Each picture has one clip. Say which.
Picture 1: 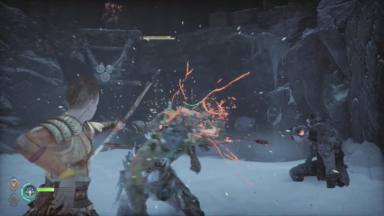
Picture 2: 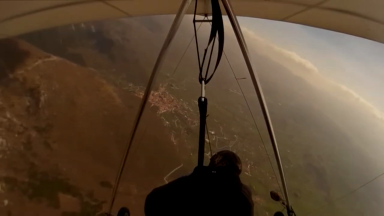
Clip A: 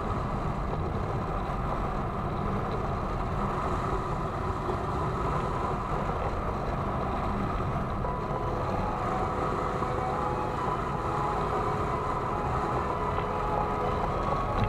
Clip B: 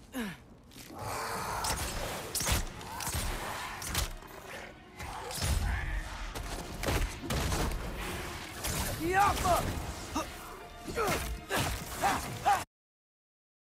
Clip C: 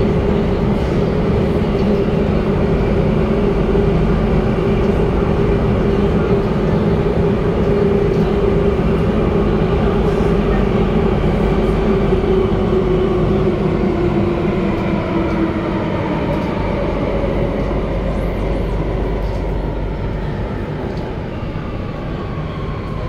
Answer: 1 B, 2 A